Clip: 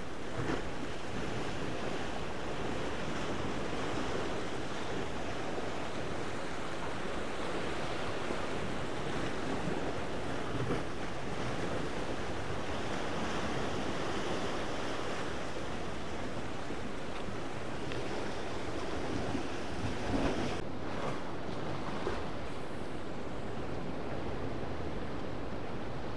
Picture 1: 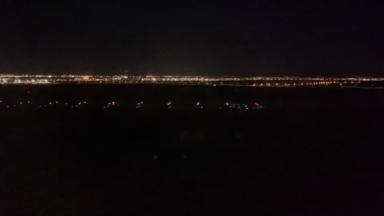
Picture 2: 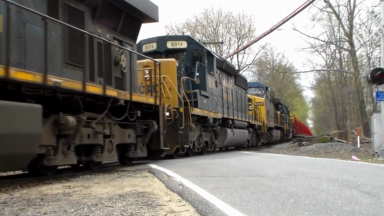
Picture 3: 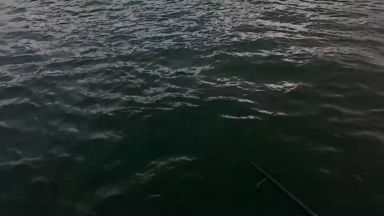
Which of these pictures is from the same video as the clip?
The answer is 3